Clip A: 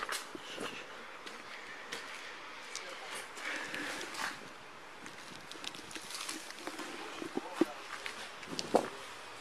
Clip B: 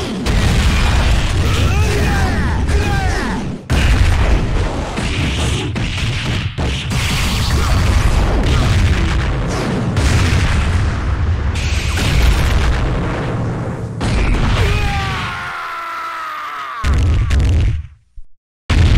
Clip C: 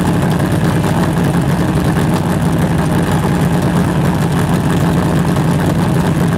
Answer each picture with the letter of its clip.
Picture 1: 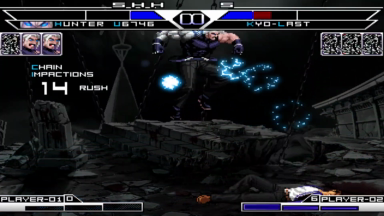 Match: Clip B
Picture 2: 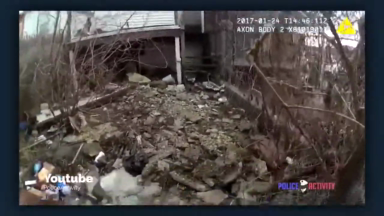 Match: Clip A